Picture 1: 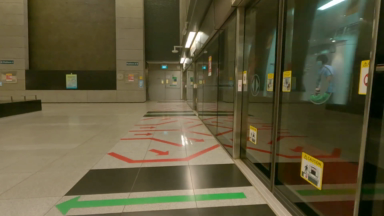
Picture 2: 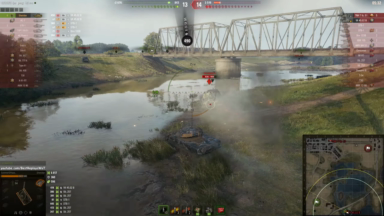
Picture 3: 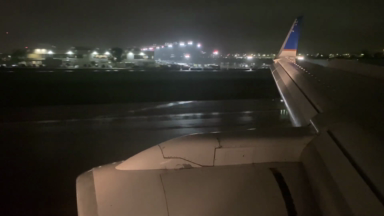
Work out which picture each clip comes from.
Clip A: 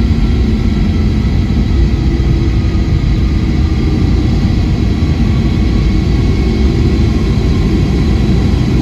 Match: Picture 3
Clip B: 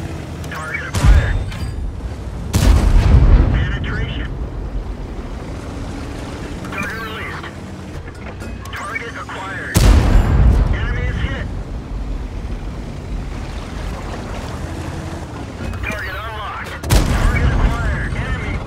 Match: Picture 2